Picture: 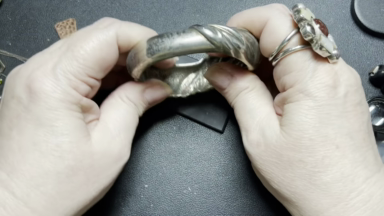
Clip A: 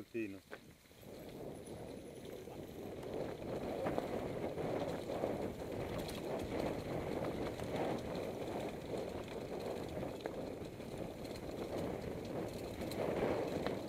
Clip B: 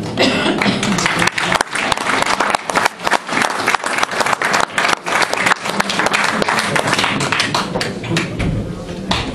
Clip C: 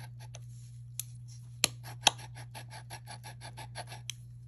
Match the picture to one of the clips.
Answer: C